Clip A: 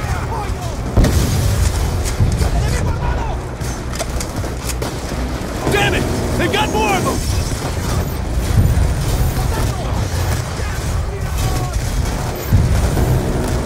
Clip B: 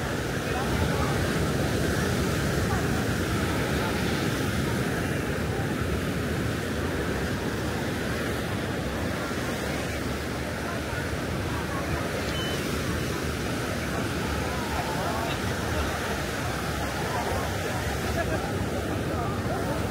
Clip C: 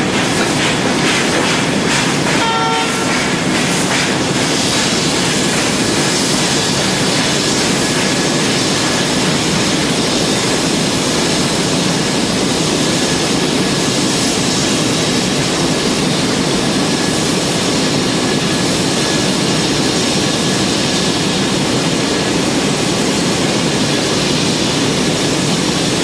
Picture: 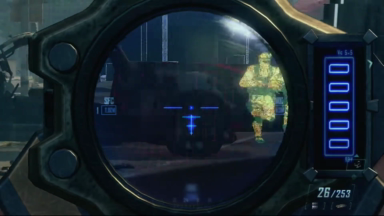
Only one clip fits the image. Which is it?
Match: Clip A